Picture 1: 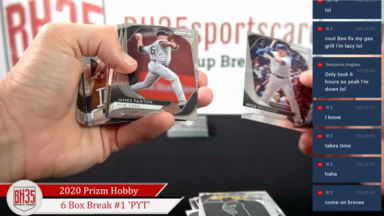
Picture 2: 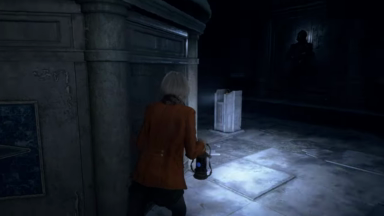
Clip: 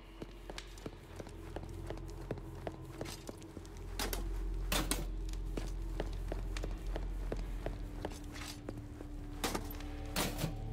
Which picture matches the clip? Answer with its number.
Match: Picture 2